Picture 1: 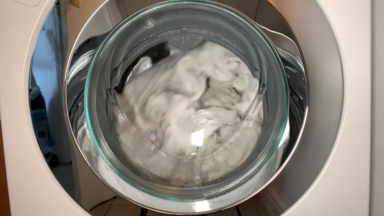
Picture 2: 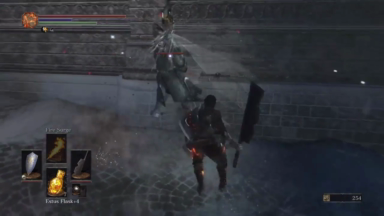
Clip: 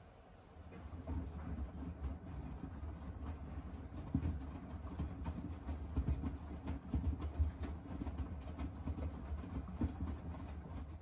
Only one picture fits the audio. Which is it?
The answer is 1